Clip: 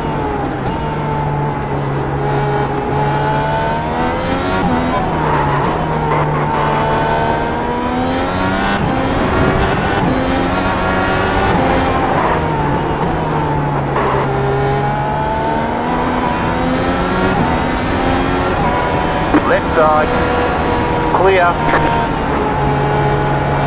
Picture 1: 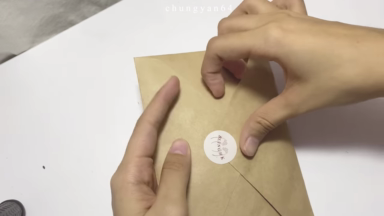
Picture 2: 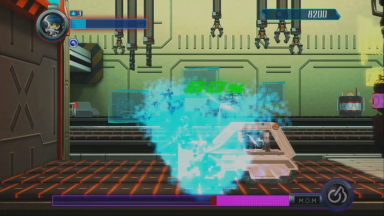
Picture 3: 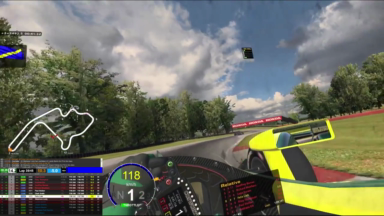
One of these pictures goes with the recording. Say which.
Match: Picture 3